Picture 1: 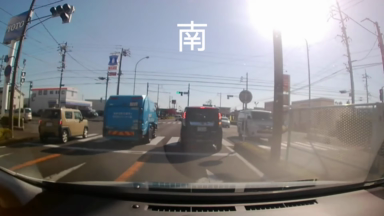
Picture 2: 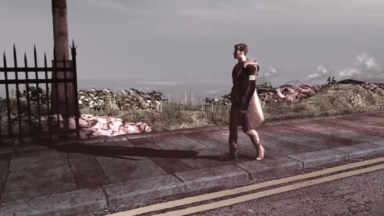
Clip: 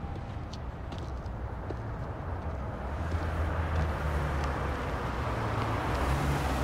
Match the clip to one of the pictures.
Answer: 2